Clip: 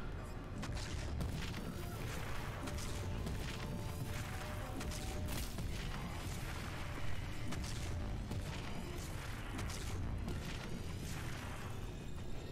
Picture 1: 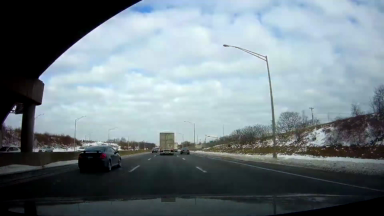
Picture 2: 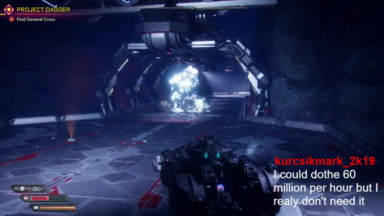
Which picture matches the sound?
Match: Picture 2